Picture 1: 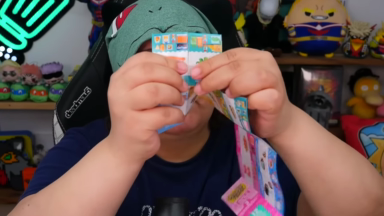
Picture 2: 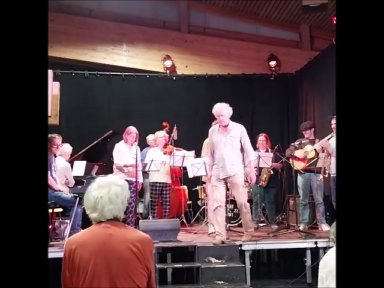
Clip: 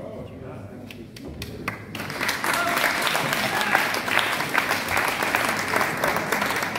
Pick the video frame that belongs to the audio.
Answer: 2